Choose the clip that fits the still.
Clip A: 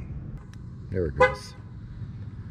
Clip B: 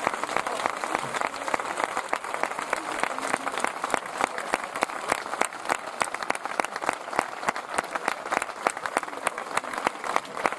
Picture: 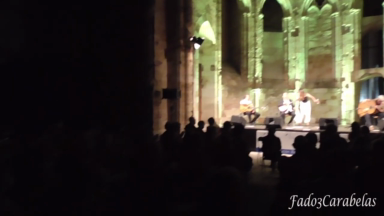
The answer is B